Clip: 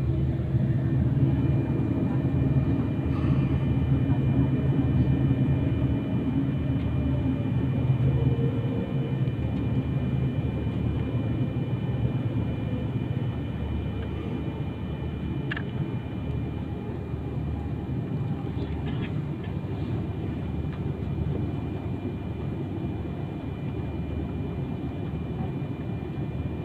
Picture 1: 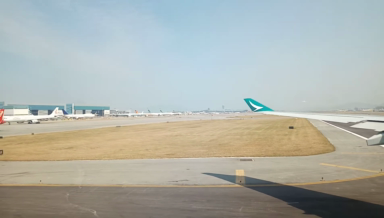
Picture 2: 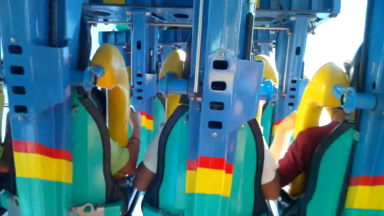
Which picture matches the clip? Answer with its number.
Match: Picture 1